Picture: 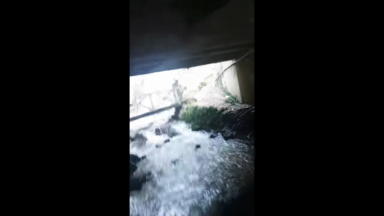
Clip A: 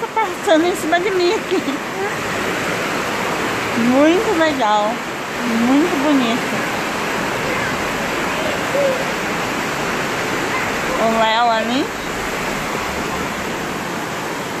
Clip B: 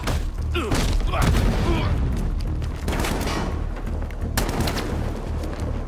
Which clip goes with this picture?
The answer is A